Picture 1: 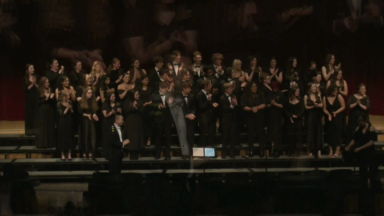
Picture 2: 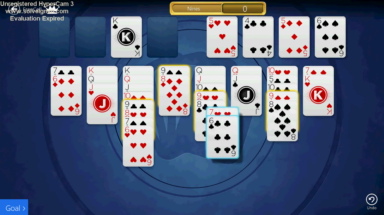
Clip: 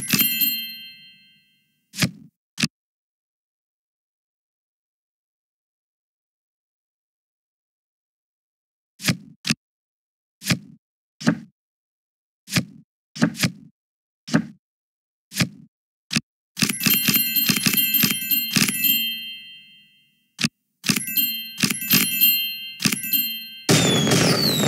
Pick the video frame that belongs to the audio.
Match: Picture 2